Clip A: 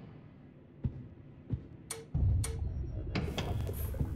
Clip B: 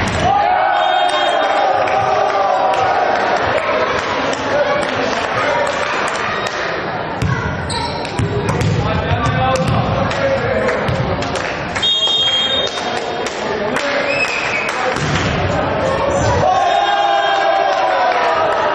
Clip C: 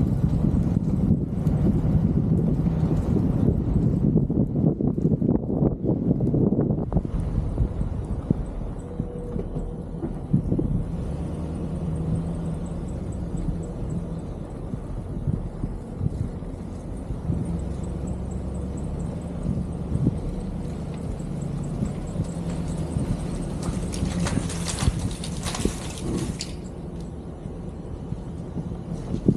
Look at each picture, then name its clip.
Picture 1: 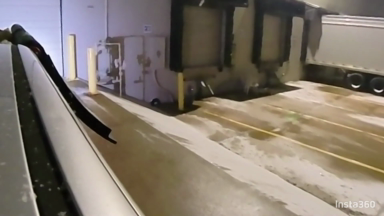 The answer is C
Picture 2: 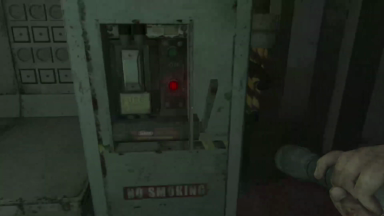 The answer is A